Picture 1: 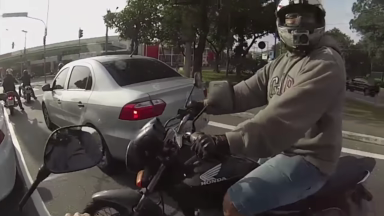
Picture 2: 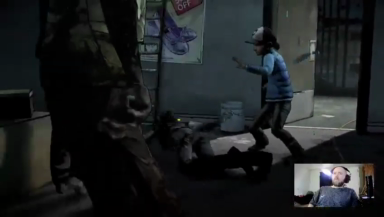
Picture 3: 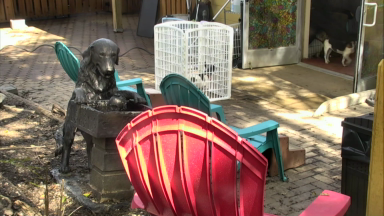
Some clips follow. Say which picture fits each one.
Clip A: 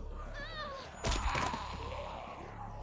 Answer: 2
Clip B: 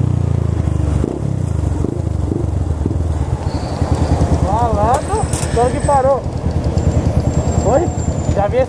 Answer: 1